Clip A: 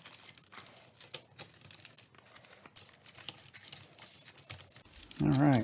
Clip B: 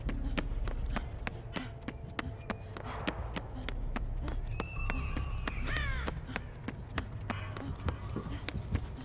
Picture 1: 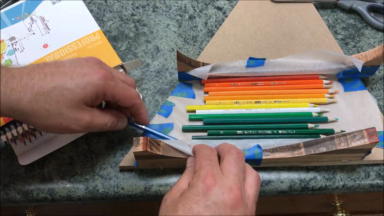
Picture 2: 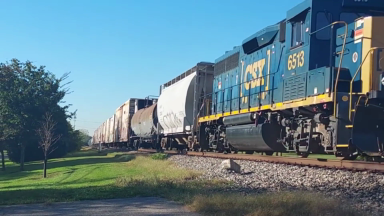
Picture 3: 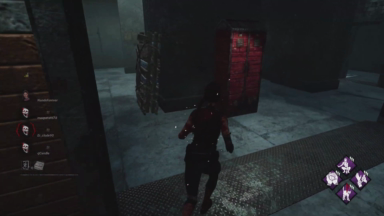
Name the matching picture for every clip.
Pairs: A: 1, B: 3